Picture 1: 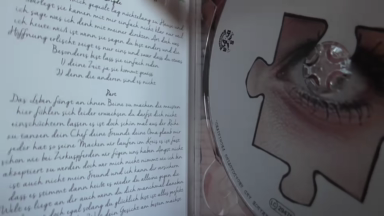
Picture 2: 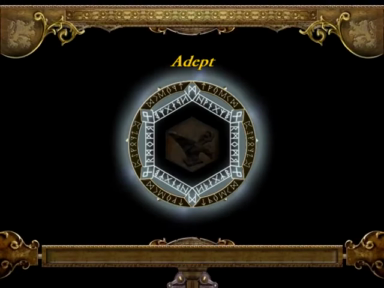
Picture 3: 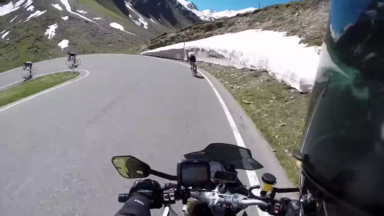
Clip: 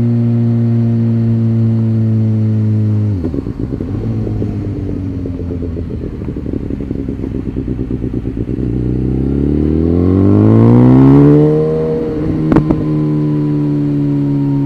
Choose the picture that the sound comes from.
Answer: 3